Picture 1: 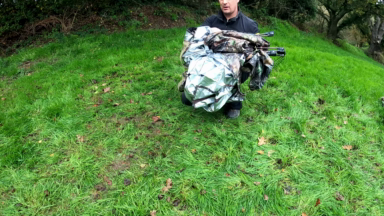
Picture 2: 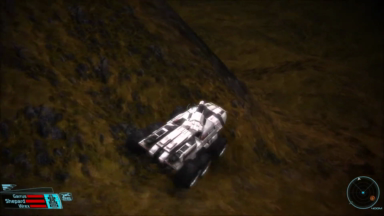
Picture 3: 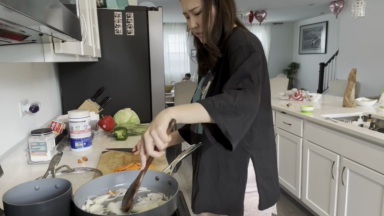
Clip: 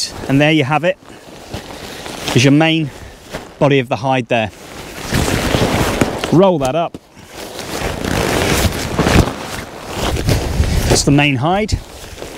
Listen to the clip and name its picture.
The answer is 1